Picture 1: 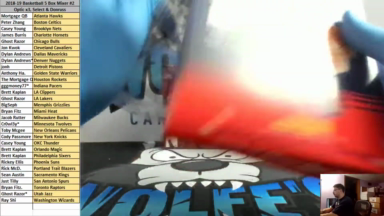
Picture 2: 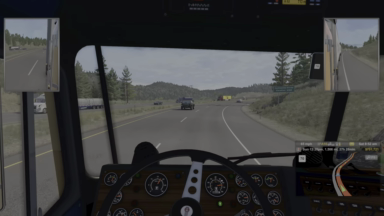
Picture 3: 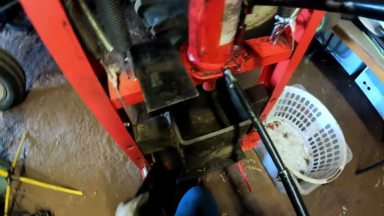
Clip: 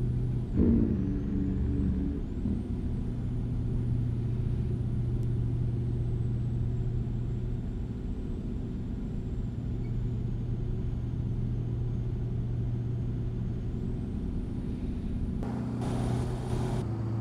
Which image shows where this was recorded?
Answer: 2